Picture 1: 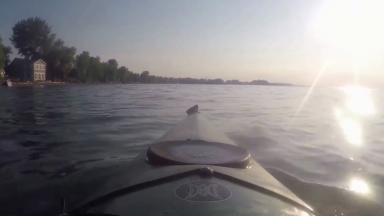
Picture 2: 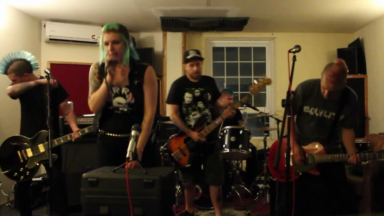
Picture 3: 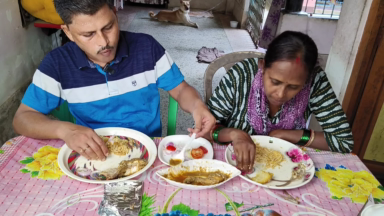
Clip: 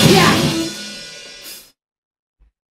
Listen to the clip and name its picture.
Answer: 2